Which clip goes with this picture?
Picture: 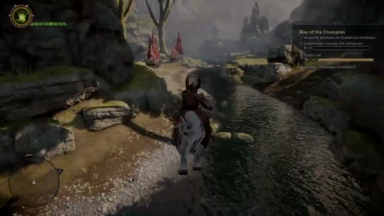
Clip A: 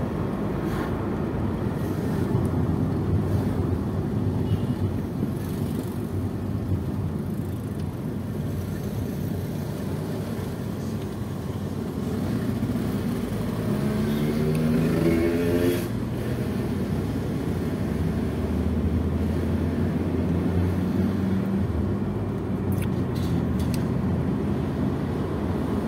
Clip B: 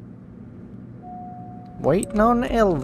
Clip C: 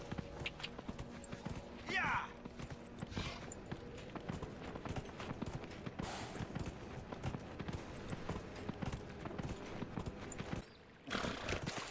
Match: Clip C